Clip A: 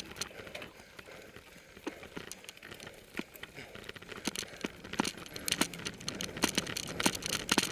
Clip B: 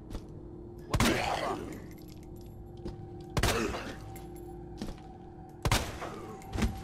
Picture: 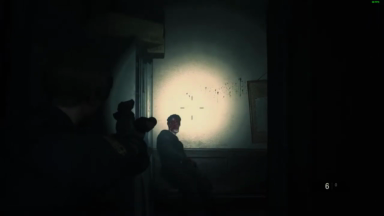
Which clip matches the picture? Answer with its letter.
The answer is B